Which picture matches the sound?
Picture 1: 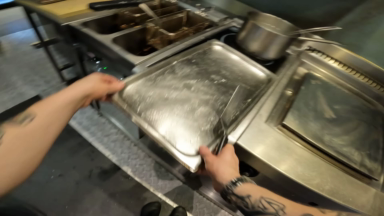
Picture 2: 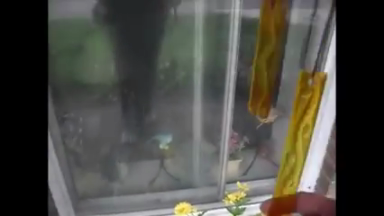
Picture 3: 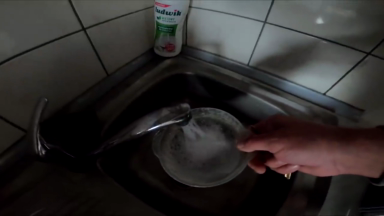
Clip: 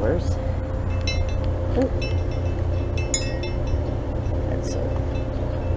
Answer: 2